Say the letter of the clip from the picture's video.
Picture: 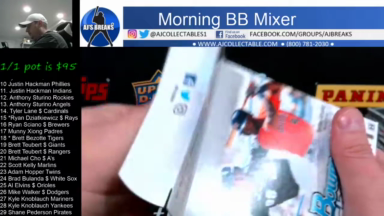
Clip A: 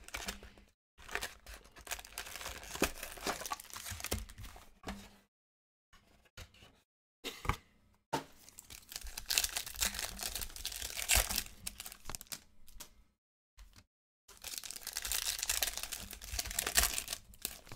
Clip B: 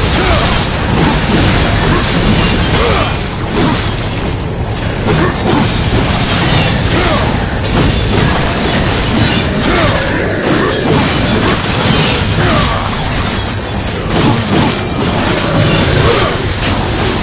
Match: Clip A